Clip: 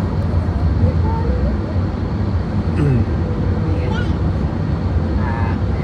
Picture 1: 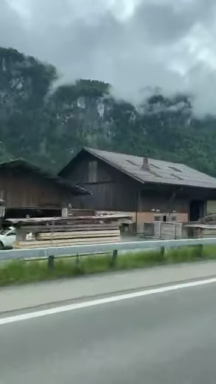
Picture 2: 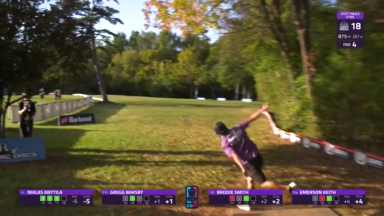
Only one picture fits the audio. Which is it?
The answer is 1